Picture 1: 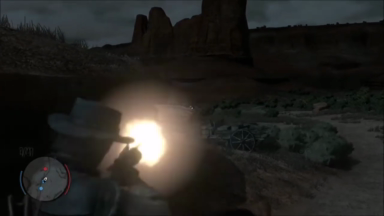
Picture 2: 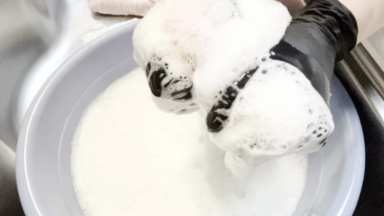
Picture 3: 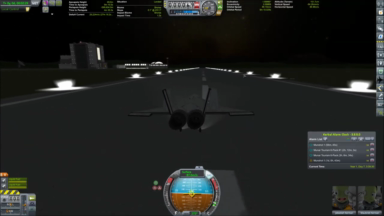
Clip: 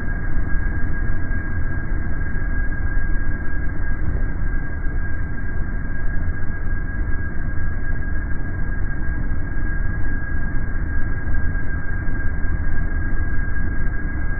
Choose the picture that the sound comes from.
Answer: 3